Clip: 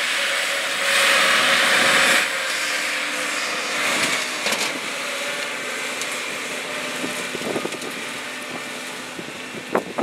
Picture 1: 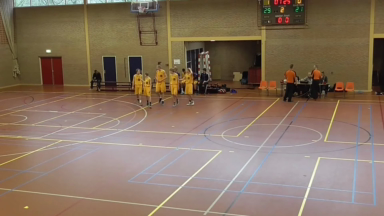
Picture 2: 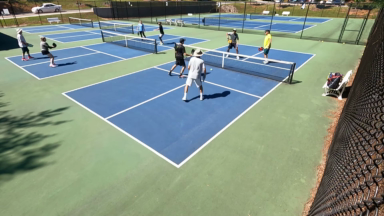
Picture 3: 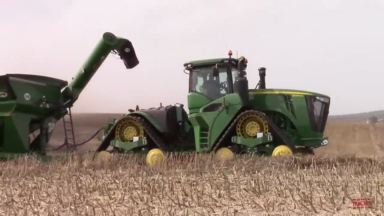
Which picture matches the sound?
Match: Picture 3